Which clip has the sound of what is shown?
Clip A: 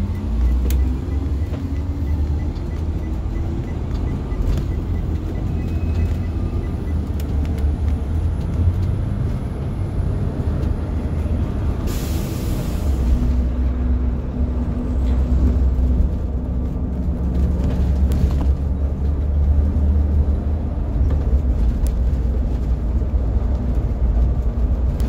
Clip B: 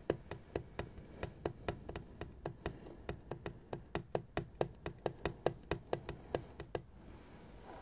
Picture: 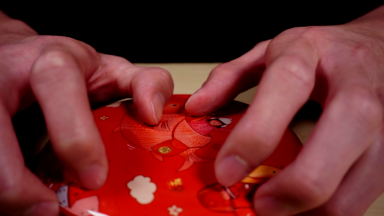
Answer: B